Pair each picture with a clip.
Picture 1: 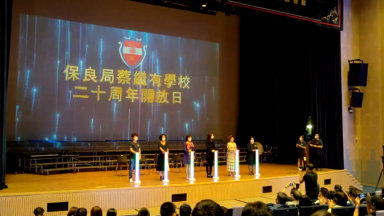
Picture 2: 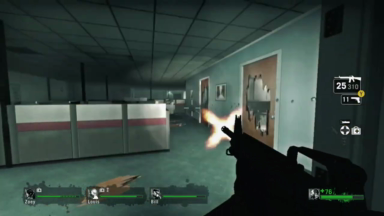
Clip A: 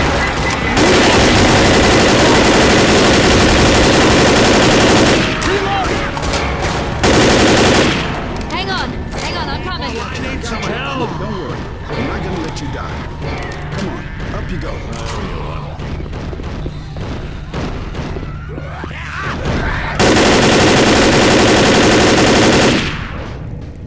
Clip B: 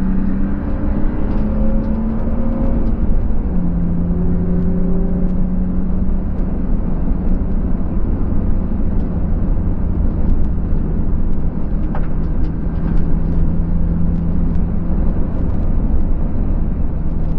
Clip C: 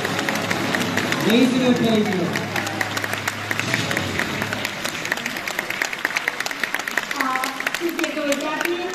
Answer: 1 C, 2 A